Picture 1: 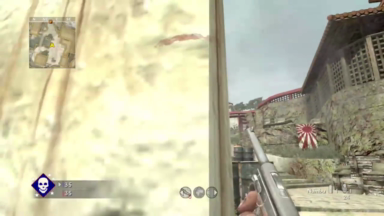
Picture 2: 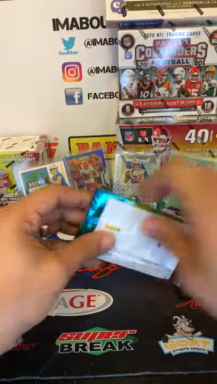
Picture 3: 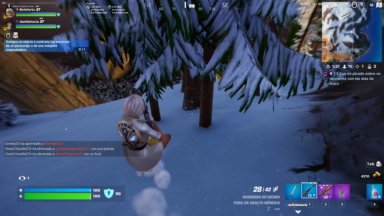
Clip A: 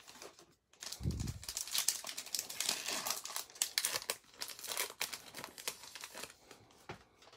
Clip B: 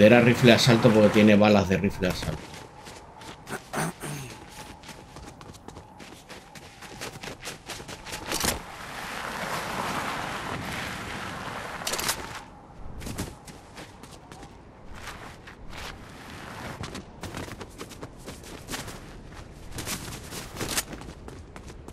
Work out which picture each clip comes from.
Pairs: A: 2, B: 3